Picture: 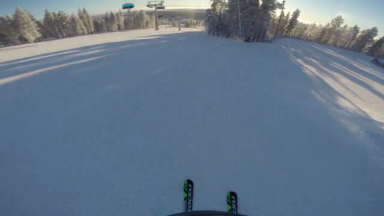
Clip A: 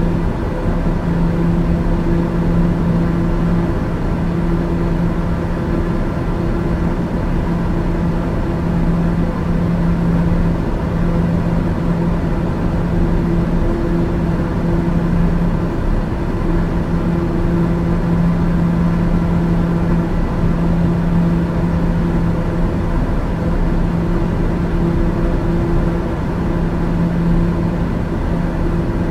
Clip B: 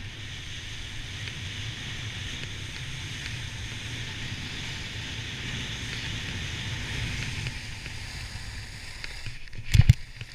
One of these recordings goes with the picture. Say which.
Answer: B